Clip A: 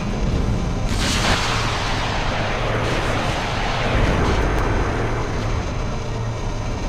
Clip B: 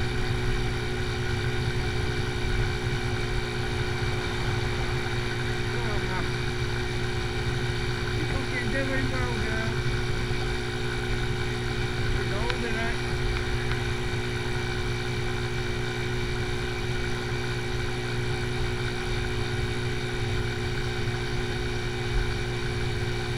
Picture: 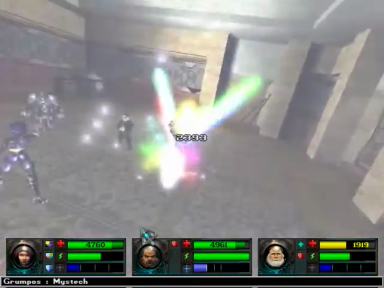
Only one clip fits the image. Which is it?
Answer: A